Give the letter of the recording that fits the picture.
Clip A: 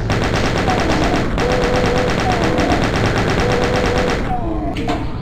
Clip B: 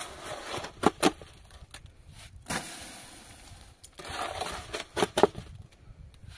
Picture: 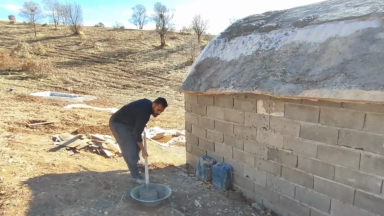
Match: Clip B